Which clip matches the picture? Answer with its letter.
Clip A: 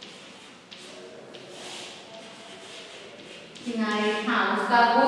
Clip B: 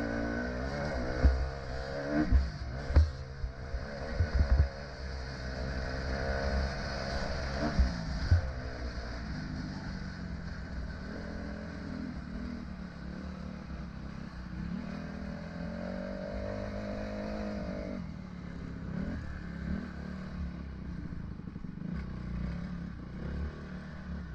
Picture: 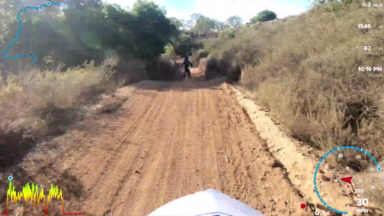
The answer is B